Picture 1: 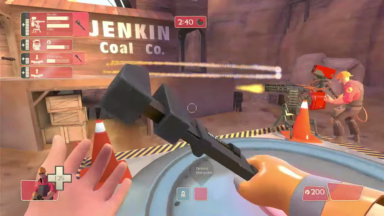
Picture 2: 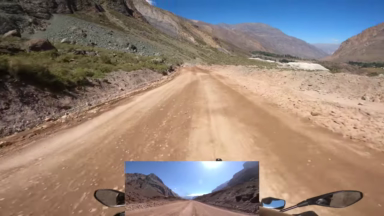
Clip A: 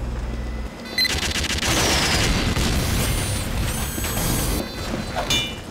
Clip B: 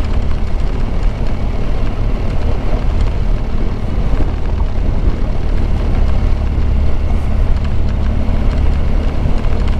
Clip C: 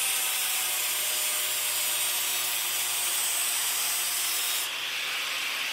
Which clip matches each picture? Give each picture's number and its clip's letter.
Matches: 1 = A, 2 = B